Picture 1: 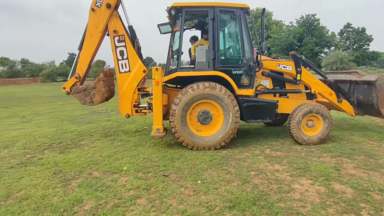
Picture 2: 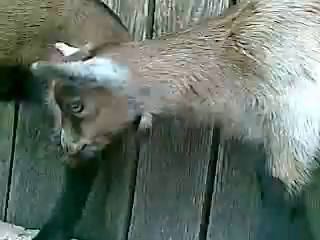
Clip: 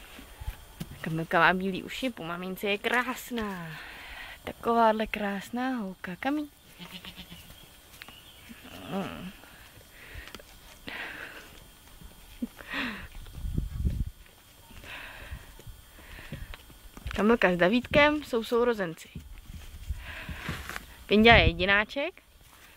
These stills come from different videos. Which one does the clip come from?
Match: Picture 2